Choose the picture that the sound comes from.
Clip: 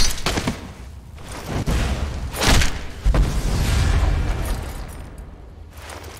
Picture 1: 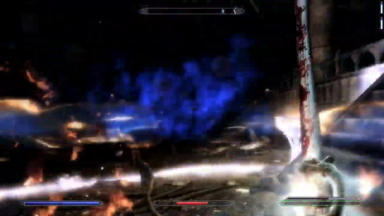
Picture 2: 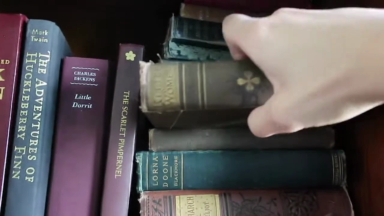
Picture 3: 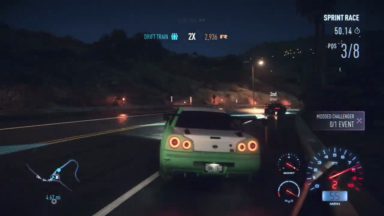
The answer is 1